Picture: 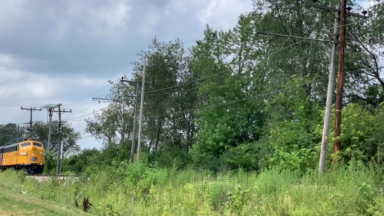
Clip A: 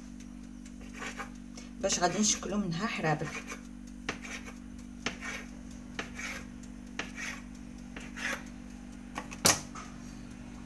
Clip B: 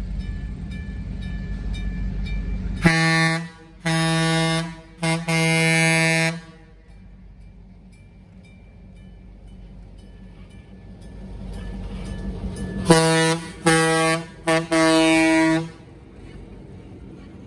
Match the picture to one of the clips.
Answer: B